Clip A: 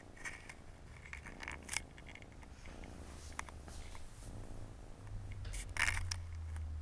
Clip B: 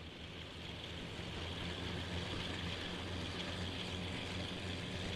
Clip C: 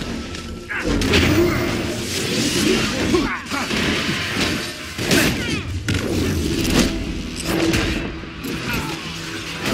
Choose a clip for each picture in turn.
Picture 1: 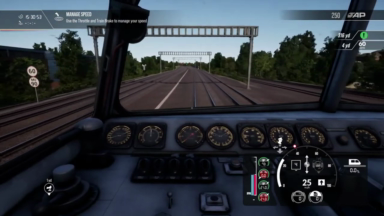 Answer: B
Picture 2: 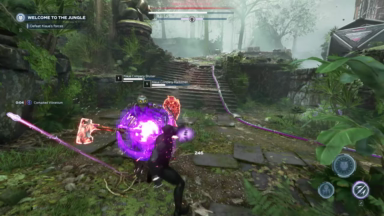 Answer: C